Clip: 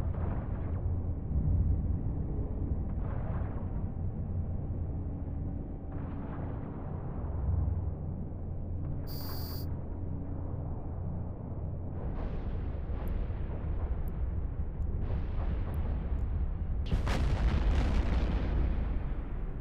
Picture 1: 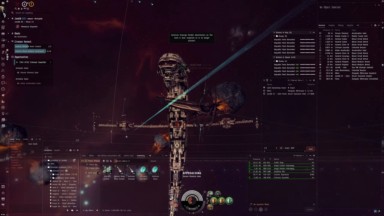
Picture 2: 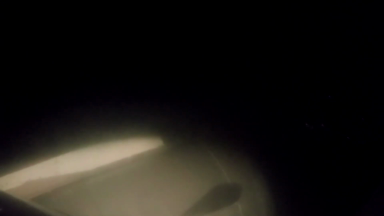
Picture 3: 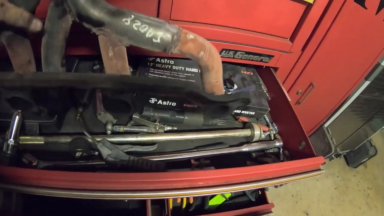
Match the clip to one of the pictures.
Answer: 1